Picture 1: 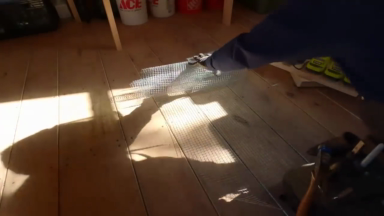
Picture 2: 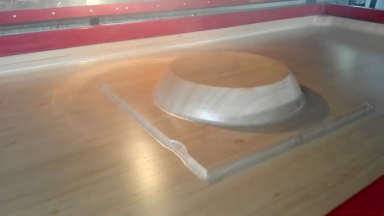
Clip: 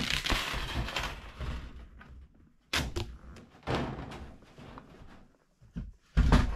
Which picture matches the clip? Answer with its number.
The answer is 1